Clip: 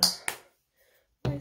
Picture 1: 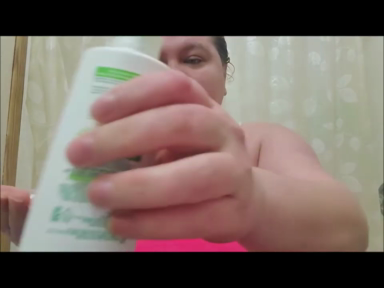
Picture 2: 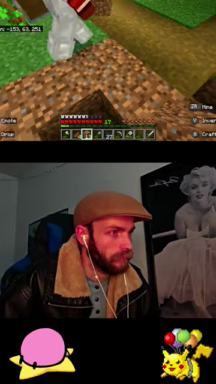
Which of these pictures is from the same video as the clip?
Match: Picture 1